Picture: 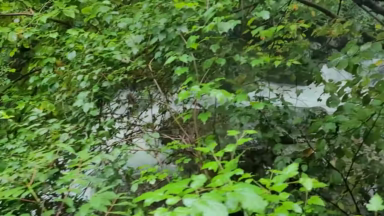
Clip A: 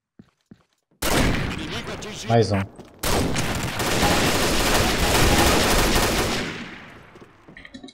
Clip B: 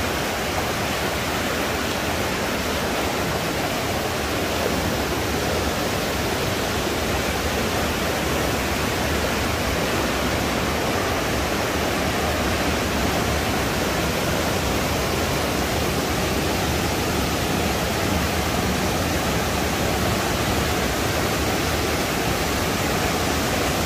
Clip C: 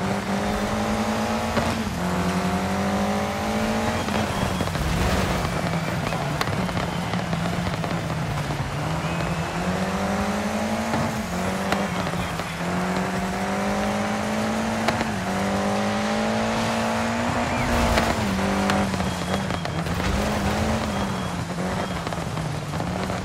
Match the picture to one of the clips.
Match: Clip B